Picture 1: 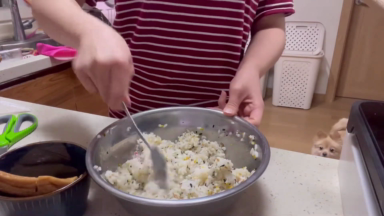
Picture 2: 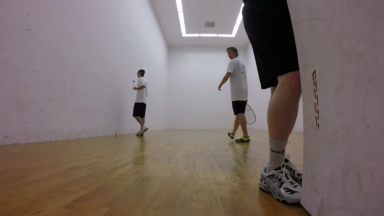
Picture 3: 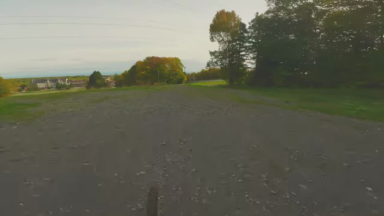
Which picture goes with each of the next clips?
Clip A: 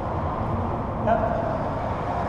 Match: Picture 2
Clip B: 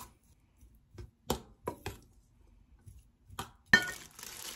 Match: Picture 1